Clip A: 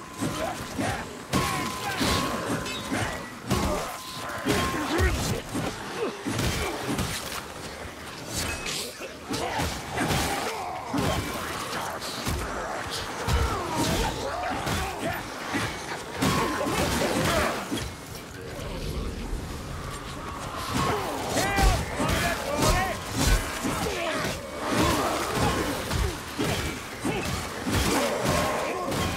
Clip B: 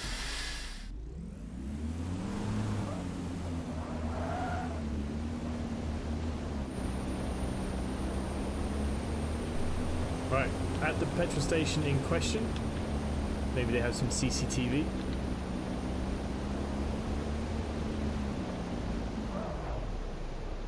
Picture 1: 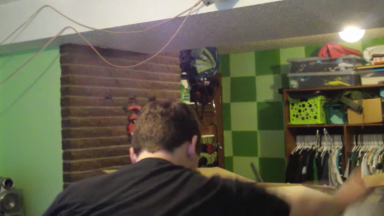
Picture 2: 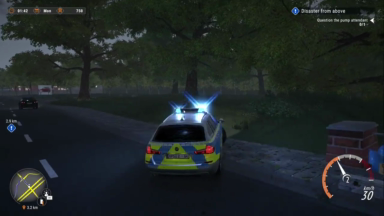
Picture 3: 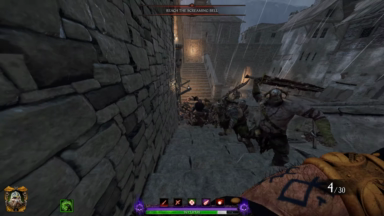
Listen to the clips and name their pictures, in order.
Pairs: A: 3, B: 2